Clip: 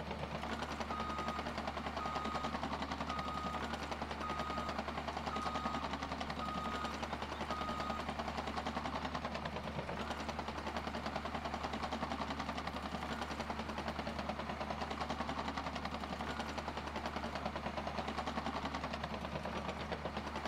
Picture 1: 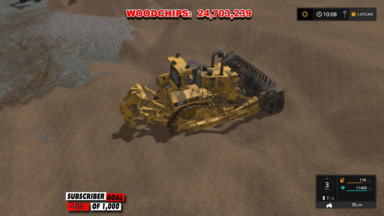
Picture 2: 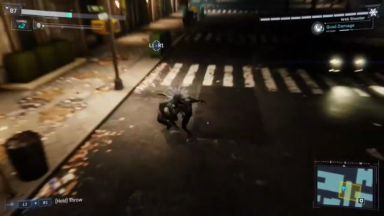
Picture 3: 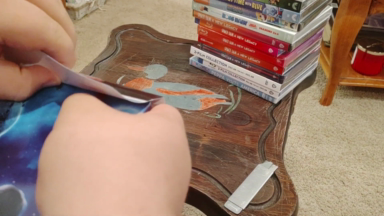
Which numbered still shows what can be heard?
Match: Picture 1